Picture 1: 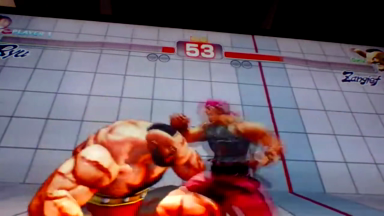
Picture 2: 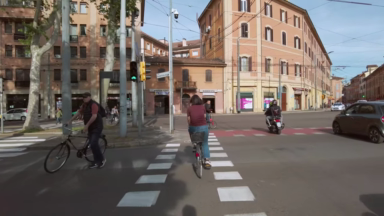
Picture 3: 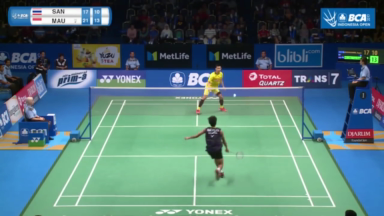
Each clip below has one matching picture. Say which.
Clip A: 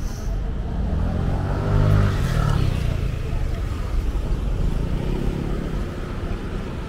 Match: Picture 2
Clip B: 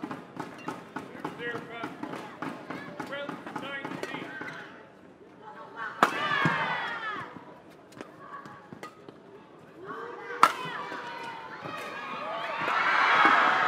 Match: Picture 3